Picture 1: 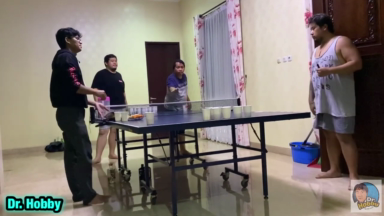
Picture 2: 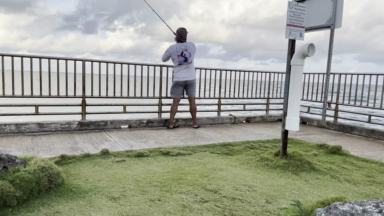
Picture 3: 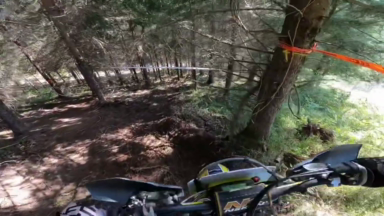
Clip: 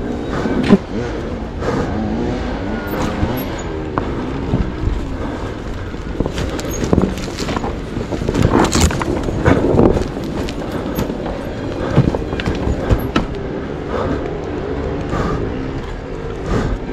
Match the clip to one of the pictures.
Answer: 3